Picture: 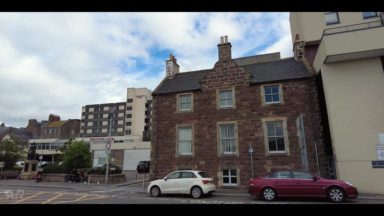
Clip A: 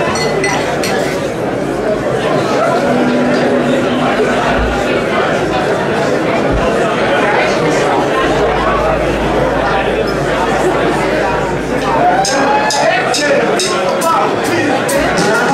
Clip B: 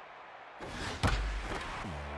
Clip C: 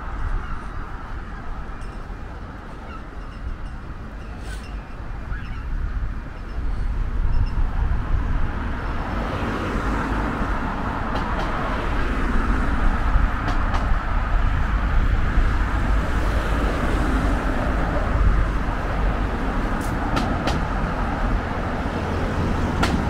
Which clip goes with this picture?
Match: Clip C